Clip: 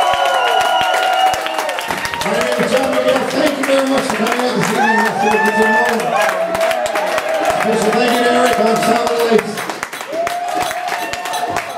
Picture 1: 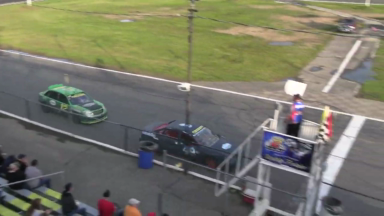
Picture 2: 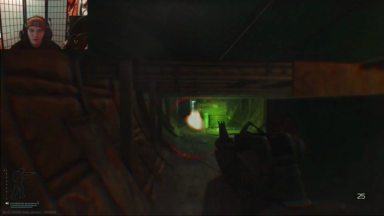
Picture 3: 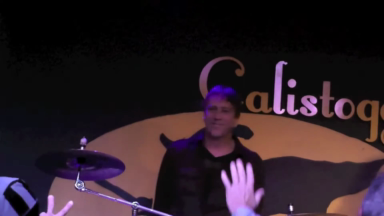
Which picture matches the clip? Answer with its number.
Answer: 3